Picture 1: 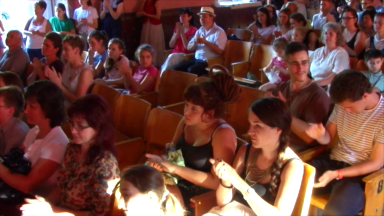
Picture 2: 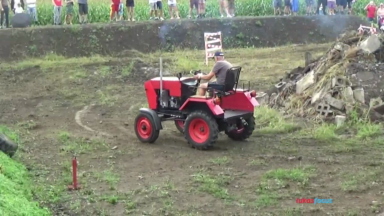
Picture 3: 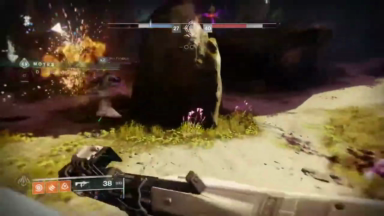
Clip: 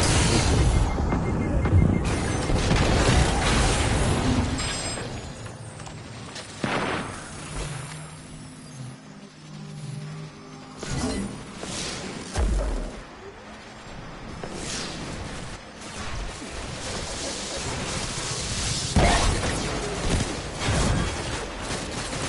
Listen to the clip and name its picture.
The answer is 3